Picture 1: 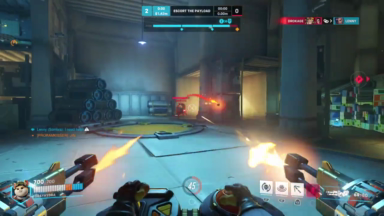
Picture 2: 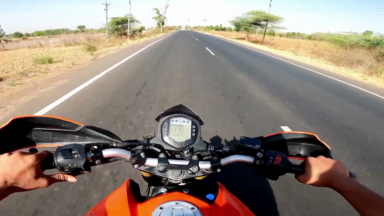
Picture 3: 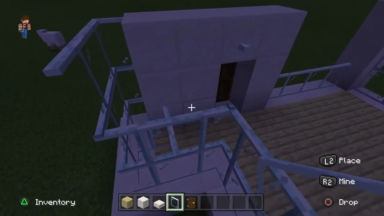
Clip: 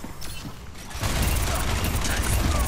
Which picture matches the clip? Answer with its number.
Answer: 1